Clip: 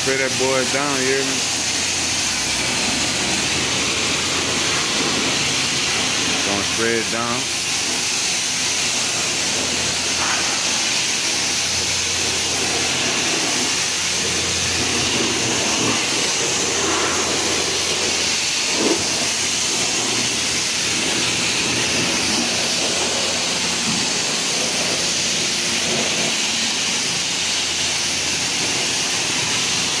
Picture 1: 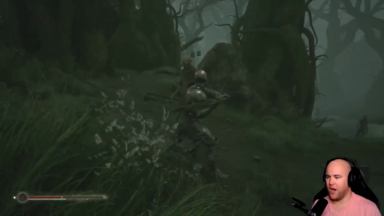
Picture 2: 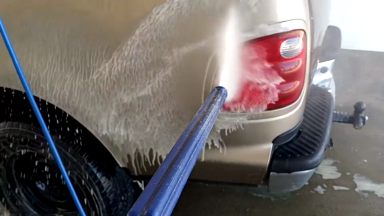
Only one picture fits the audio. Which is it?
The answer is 2